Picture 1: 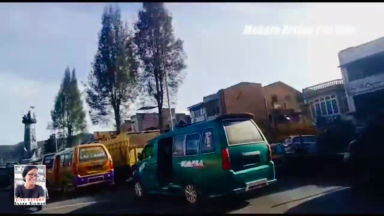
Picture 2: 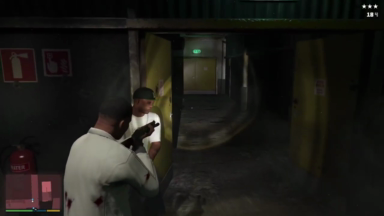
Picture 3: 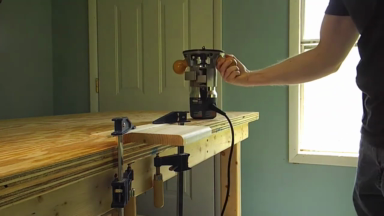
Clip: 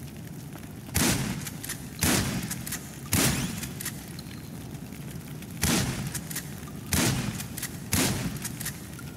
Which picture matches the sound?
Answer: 2